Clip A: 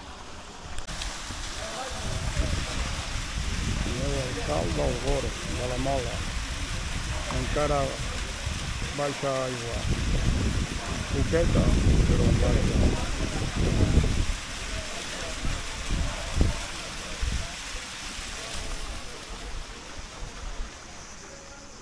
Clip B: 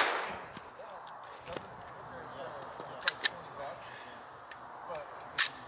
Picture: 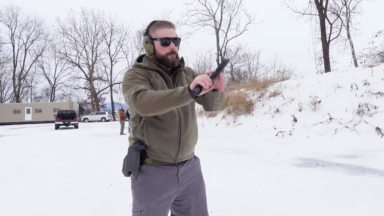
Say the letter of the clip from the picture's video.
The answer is B